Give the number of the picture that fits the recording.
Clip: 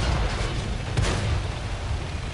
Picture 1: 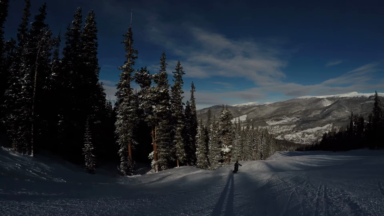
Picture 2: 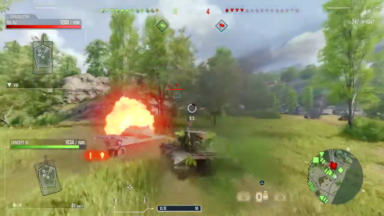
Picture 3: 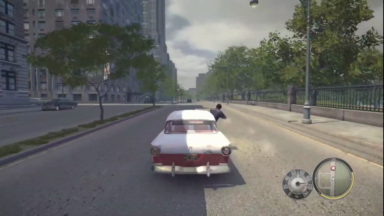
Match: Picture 2